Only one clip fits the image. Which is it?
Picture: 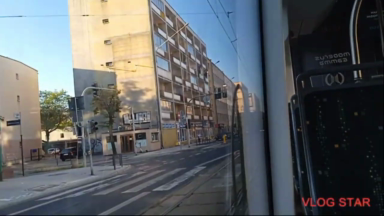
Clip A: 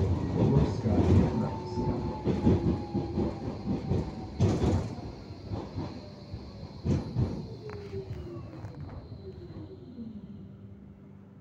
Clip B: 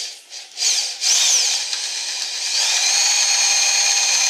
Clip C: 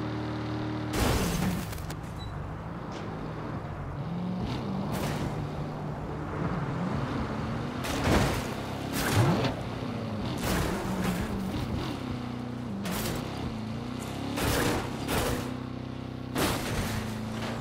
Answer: A